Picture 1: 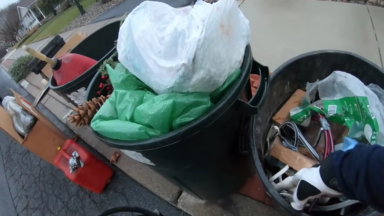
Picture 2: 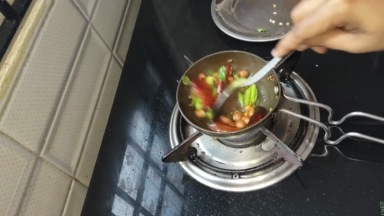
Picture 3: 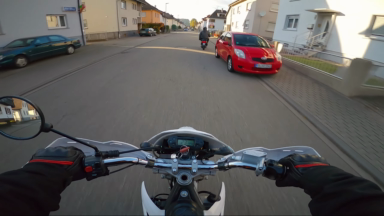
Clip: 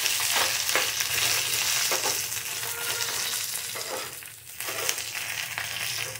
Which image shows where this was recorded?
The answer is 2